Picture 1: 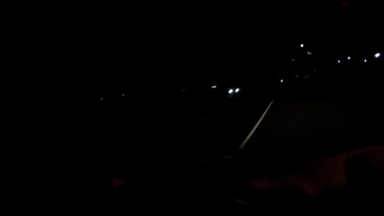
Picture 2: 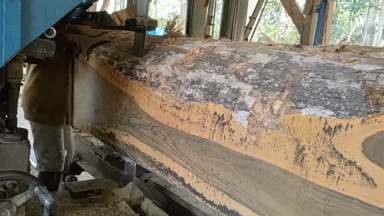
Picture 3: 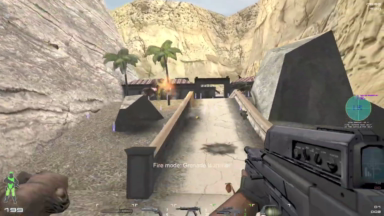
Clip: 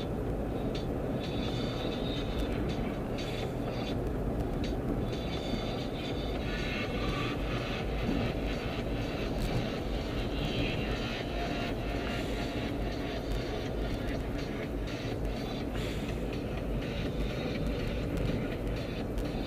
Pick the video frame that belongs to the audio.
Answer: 1